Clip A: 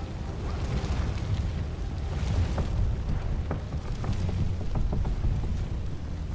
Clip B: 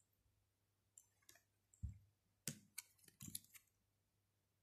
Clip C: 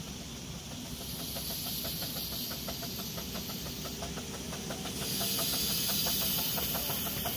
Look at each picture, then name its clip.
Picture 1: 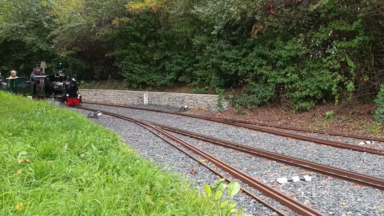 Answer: C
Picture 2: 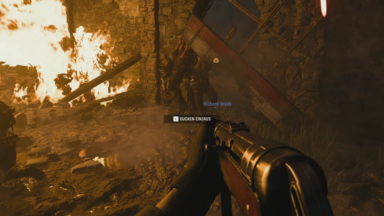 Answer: A